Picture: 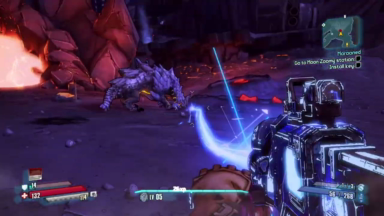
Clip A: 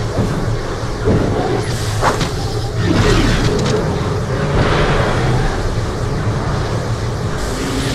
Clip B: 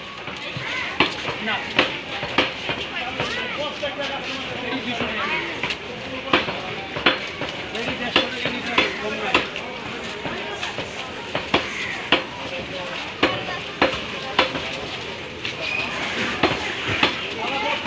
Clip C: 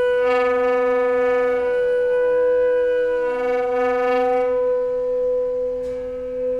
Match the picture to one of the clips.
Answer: A